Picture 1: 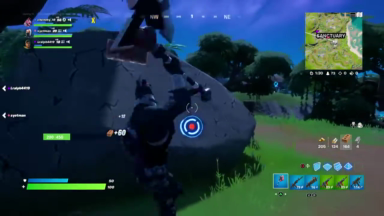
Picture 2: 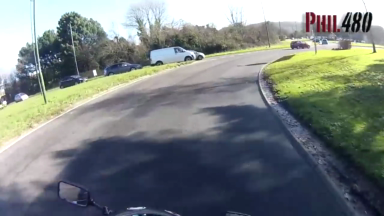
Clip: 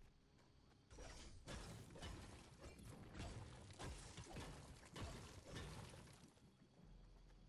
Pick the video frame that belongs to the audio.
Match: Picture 1